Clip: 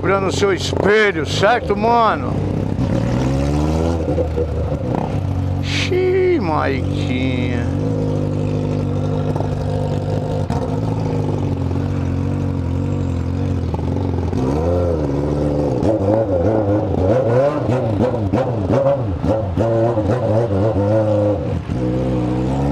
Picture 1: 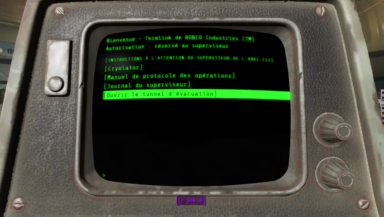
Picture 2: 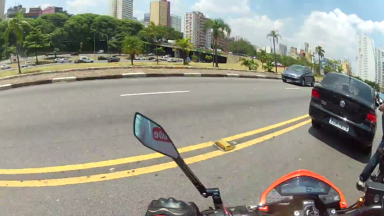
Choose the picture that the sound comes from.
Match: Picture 2